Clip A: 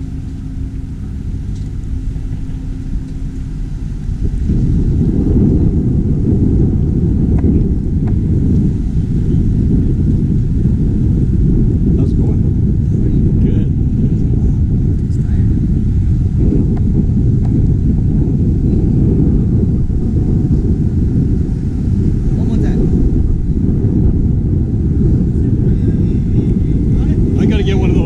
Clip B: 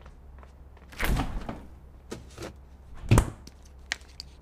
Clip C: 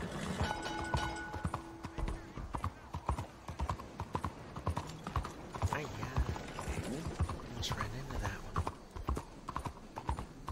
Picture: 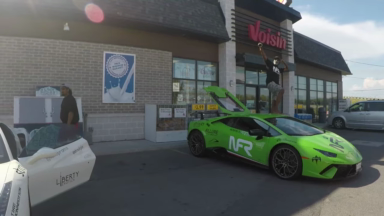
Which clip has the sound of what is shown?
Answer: A